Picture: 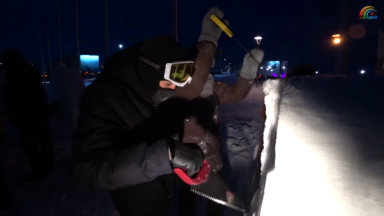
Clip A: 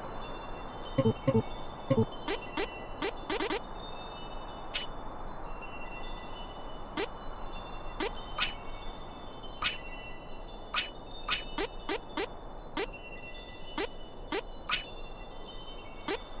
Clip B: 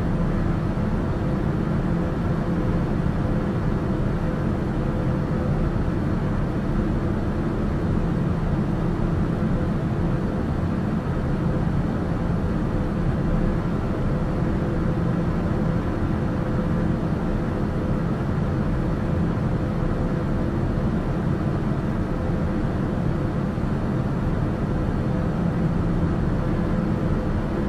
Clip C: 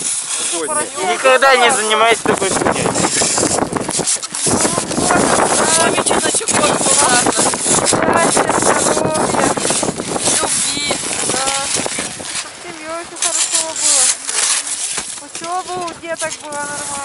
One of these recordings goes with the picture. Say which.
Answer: C